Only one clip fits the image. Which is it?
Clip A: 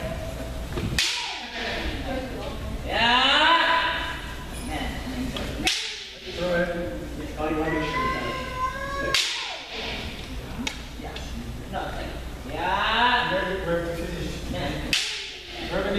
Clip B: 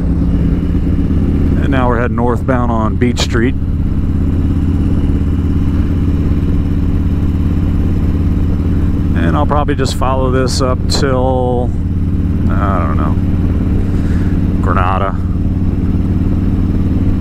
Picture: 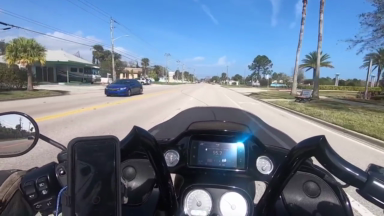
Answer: B